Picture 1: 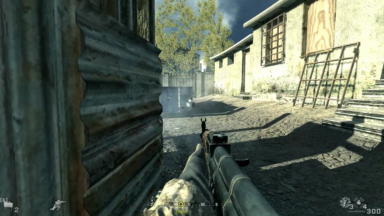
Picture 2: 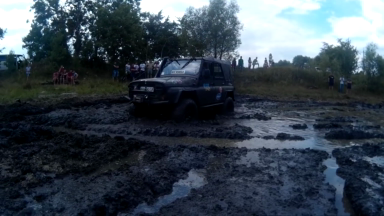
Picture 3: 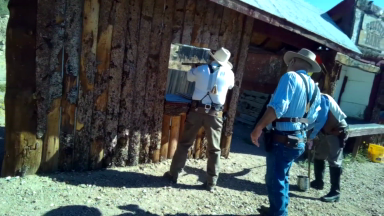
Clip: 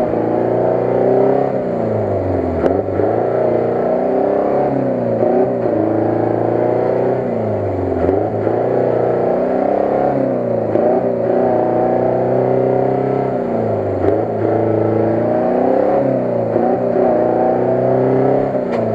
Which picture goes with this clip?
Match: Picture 2